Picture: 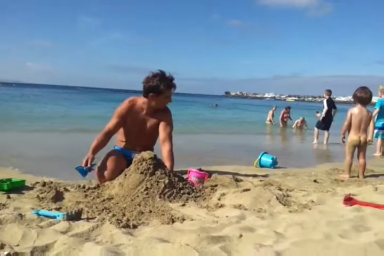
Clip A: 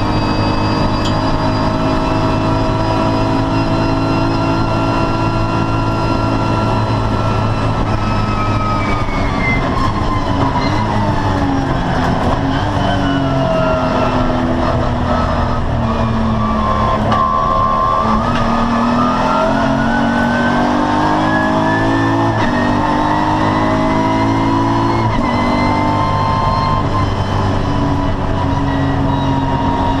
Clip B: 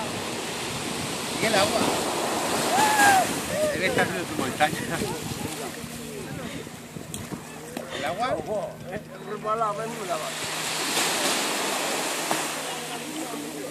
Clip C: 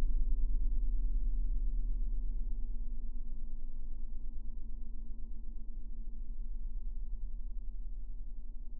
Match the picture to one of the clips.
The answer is B